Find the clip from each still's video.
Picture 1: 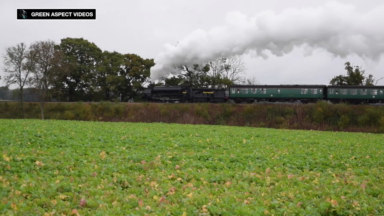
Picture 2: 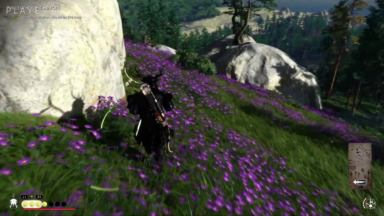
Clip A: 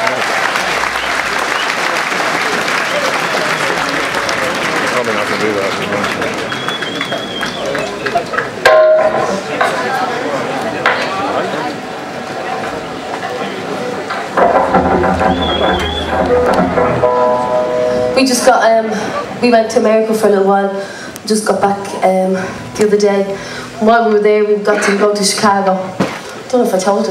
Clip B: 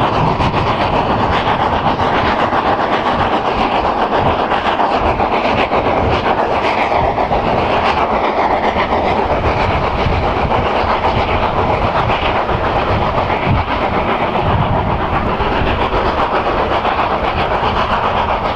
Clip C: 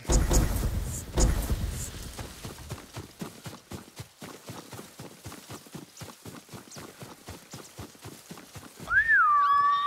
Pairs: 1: B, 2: C